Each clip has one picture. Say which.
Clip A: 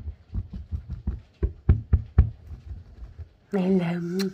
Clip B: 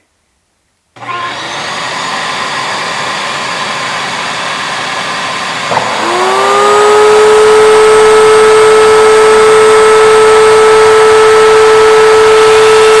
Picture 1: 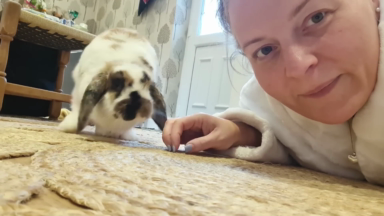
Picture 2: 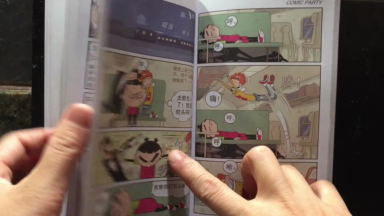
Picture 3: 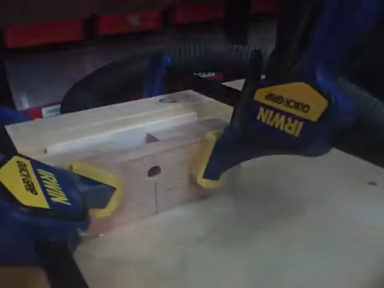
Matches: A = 1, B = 3